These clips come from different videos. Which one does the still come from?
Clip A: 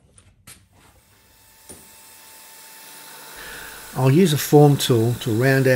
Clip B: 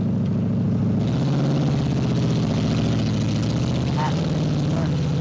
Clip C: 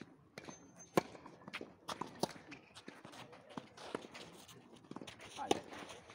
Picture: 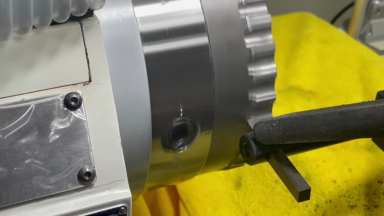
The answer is A